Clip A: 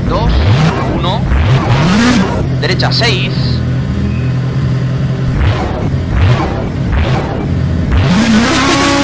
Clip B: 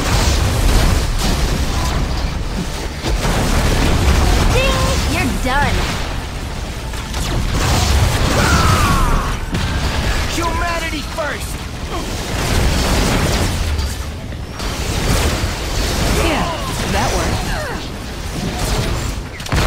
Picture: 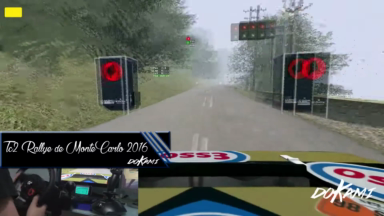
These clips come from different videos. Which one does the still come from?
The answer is A